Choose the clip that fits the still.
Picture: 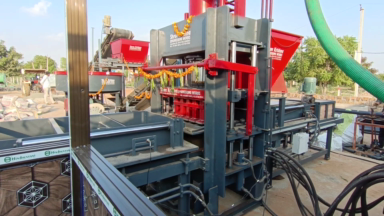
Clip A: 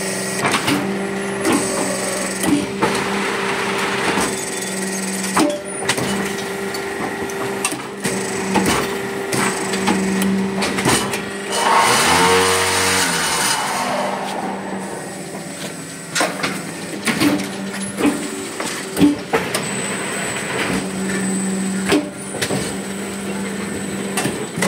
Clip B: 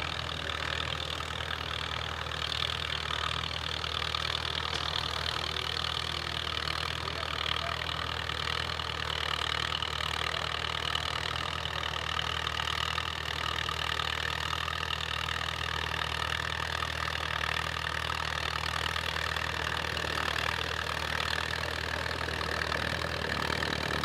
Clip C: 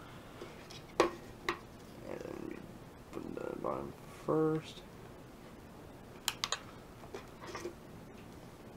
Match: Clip A